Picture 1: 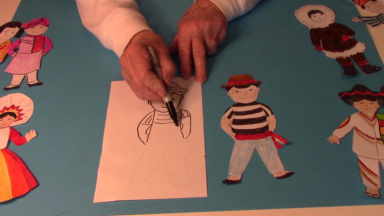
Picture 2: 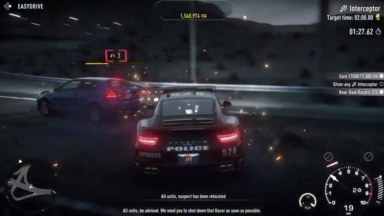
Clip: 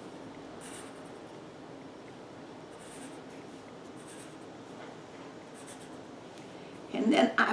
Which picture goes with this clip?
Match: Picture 1